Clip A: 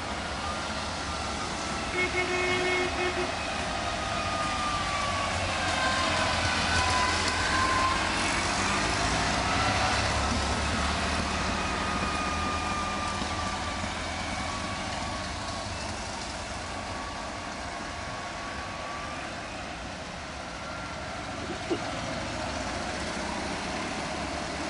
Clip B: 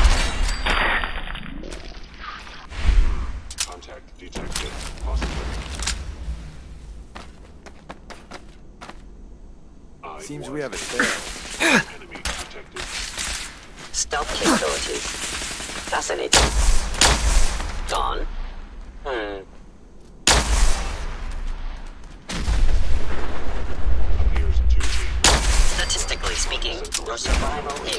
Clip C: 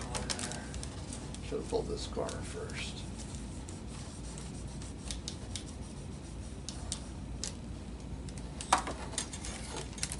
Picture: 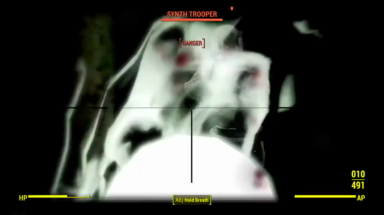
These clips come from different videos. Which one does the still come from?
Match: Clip B